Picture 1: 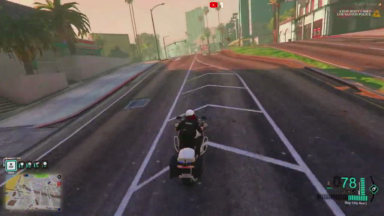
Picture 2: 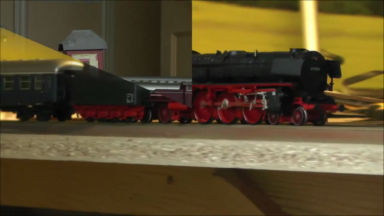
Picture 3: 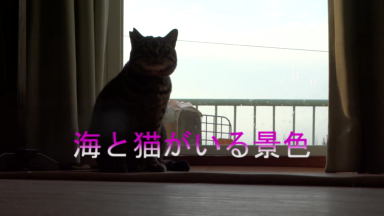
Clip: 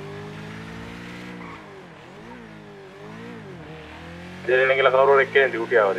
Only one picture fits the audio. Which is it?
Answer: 1